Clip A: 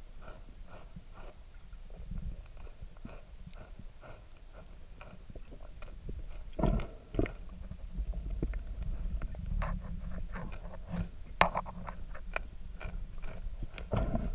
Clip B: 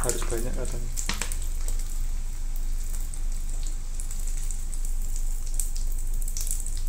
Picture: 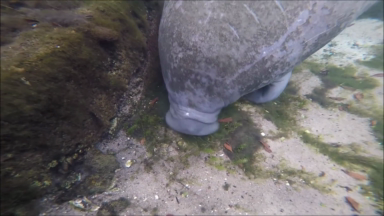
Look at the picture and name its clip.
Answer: A